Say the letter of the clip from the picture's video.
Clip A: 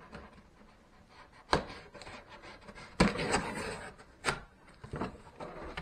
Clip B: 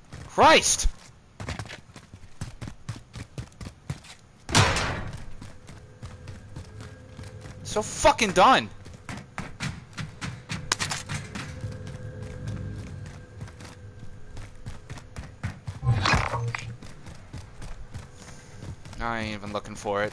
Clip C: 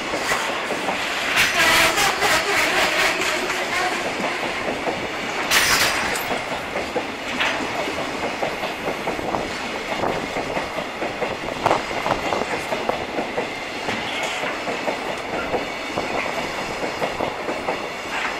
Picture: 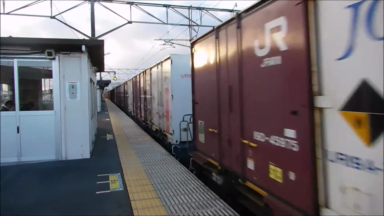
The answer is C